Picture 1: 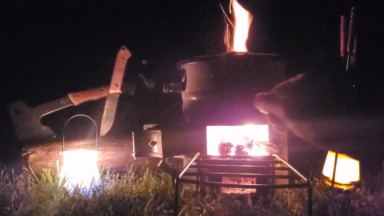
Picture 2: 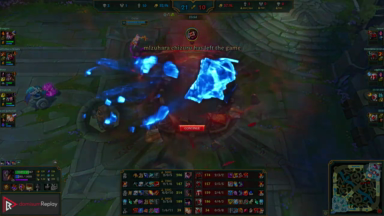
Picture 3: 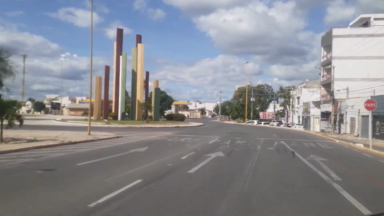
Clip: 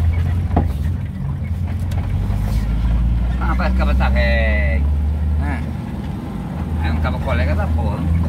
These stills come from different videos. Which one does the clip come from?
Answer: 3